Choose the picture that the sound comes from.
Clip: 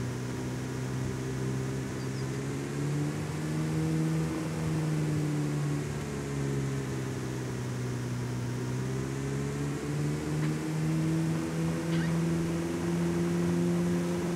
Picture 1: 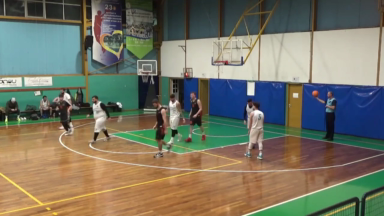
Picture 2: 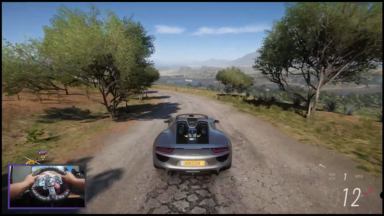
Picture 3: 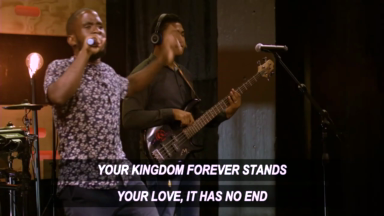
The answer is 2